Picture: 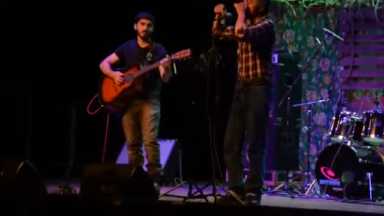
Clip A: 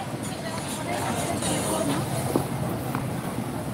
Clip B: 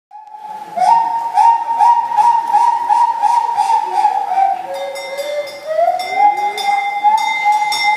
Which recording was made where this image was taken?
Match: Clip B